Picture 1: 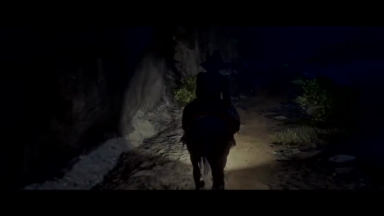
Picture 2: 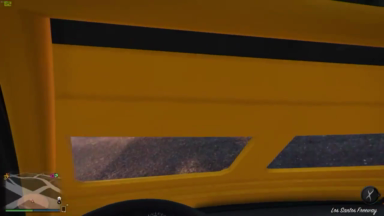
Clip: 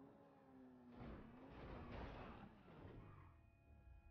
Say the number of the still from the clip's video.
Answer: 2